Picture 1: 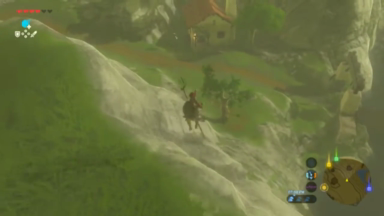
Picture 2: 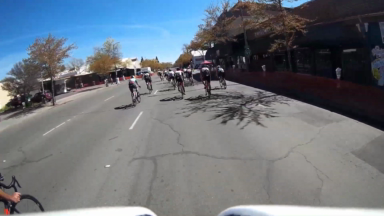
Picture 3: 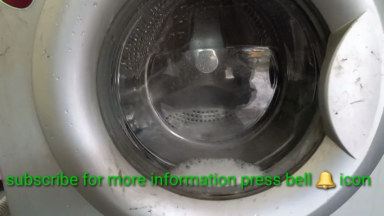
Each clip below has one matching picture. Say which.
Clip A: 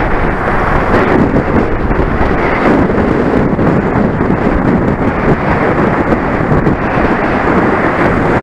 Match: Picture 2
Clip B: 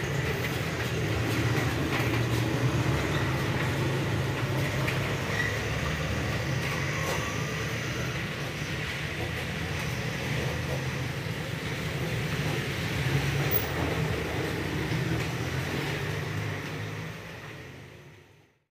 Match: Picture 3